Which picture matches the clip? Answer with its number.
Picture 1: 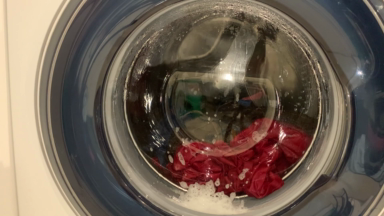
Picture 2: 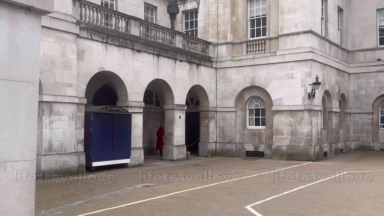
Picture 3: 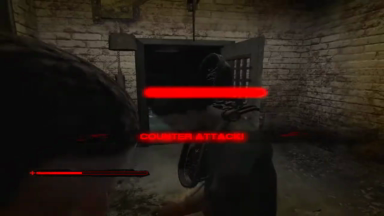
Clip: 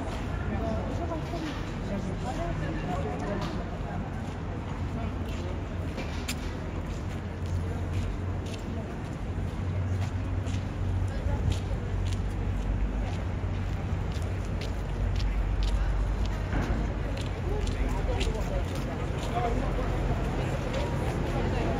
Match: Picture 2